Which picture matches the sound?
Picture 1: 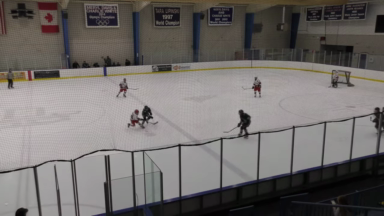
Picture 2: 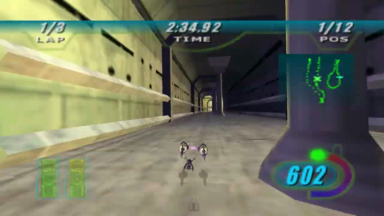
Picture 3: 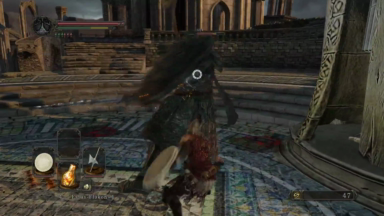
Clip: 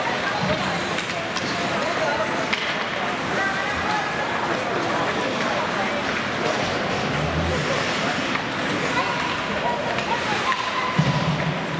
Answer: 1